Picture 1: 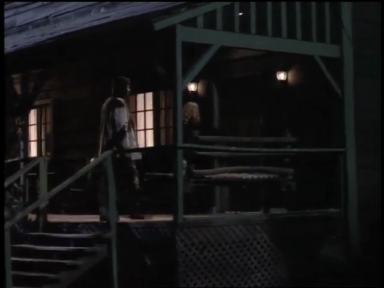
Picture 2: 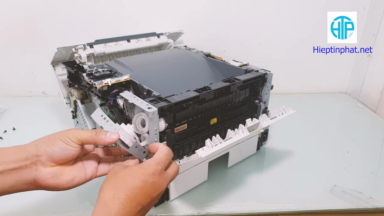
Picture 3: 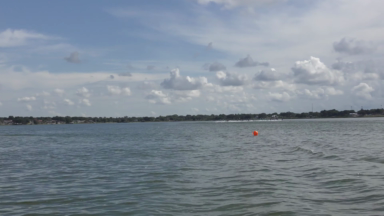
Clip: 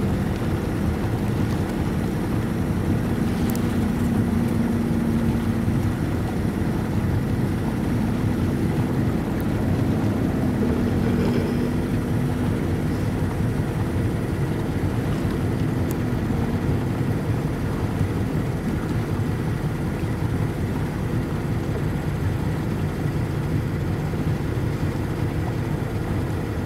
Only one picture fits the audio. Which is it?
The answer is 3